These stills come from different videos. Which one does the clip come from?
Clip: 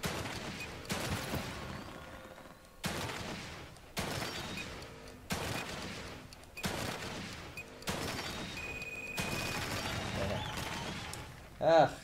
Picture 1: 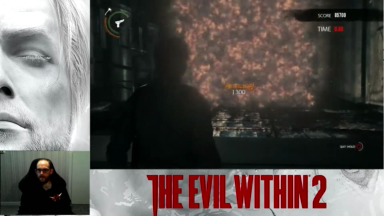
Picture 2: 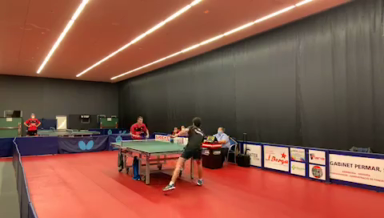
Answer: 1